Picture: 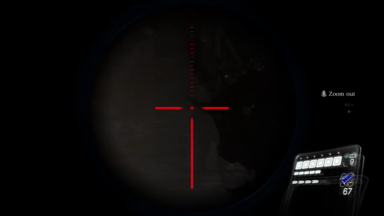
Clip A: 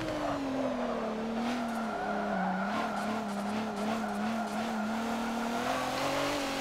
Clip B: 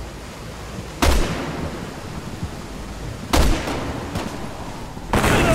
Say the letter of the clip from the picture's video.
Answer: B